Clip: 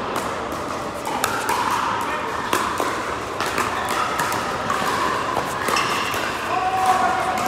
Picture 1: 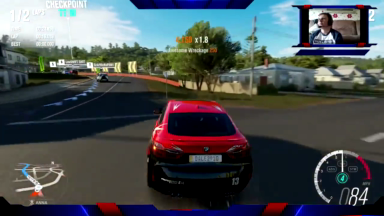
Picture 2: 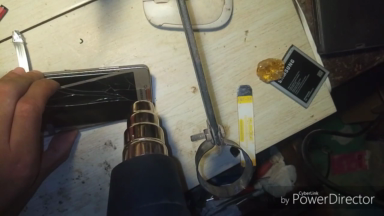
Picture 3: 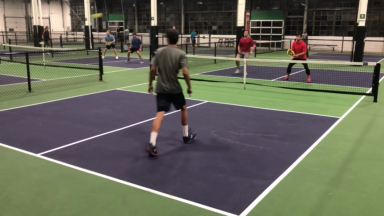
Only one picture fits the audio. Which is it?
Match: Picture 3